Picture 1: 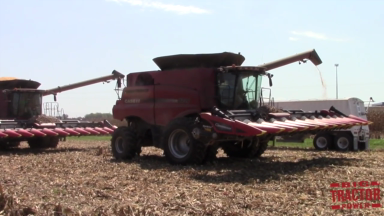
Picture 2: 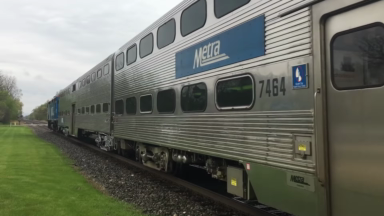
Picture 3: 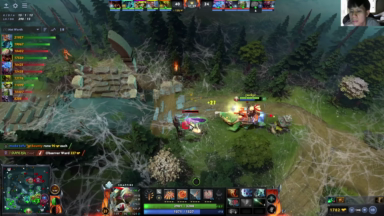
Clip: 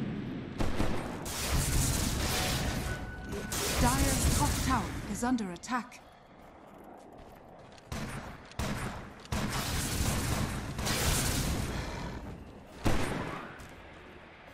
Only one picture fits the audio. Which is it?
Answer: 3